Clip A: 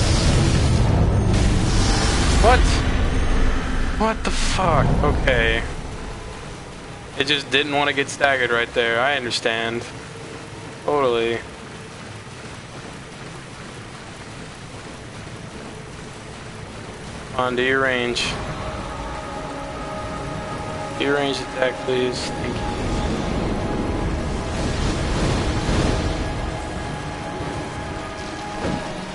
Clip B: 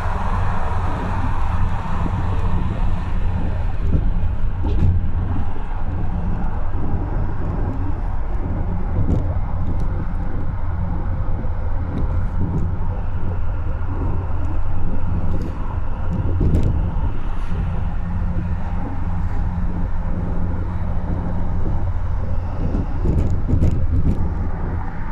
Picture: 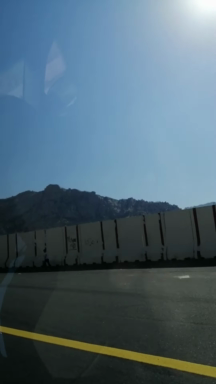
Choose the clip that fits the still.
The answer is B